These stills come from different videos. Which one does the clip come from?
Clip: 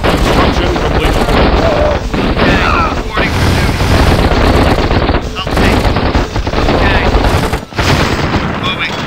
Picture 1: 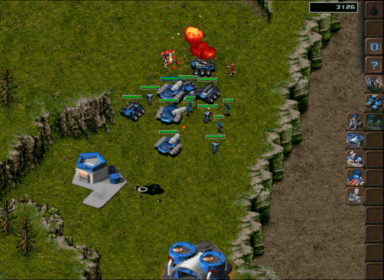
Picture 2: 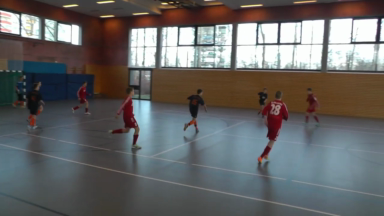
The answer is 1